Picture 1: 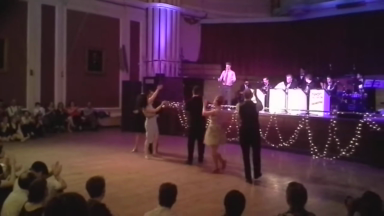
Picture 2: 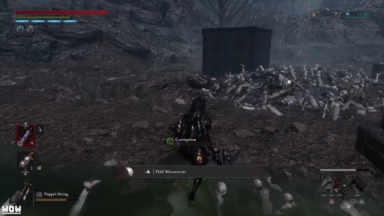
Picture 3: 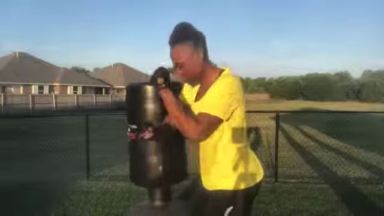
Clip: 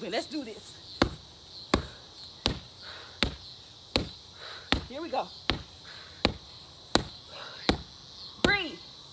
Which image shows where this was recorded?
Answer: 3